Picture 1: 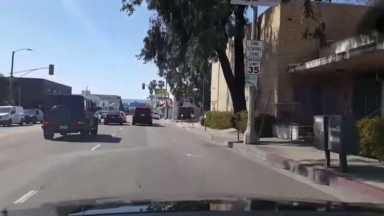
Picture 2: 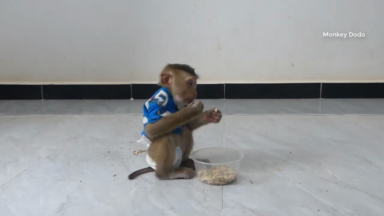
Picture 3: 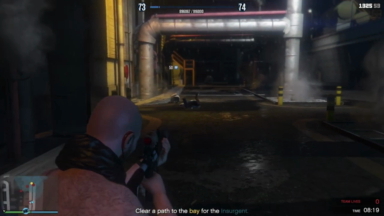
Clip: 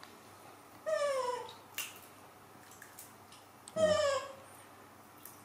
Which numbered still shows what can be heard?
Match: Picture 2